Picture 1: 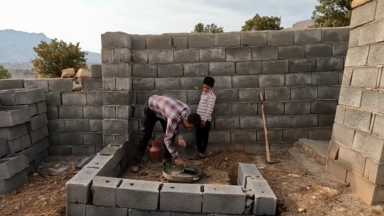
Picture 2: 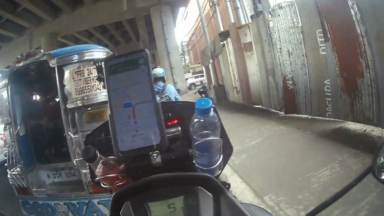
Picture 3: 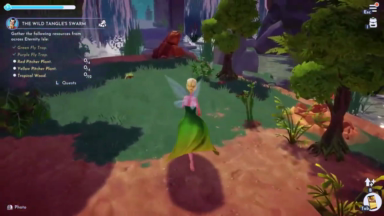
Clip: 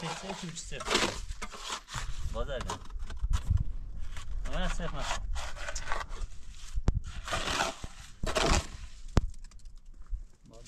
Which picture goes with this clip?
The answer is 1